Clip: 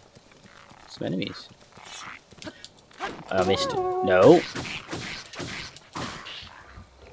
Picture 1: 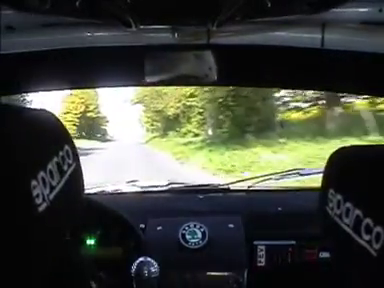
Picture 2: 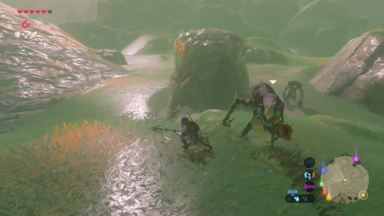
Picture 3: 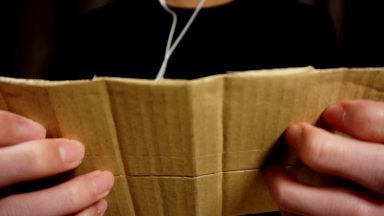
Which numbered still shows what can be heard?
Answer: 2